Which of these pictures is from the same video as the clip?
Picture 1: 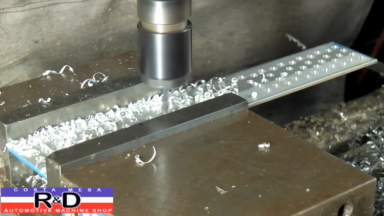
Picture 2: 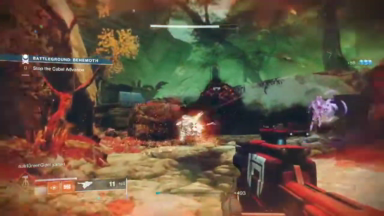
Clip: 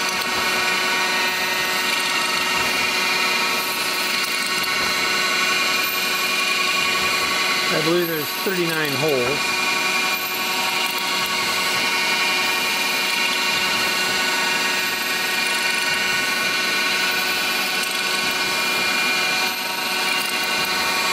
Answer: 1